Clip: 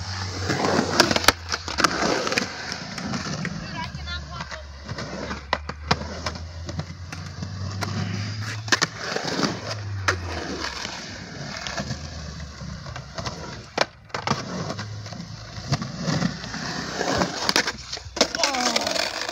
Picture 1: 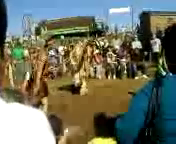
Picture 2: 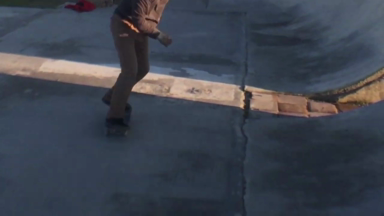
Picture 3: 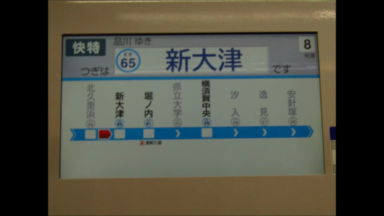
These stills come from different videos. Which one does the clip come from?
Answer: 2